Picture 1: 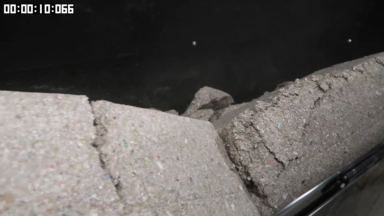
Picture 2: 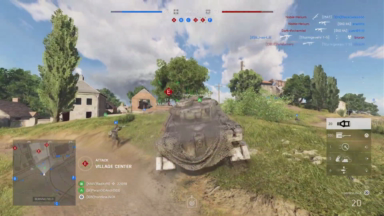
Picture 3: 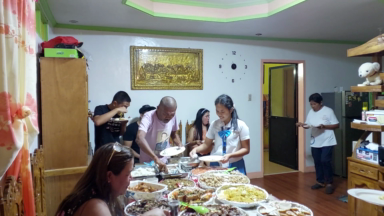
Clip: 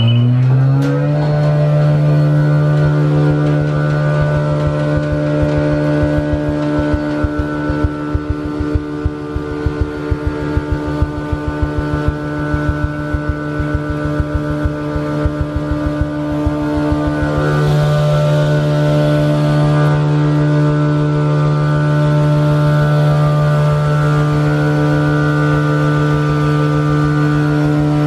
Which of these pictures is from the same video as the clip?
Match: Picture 1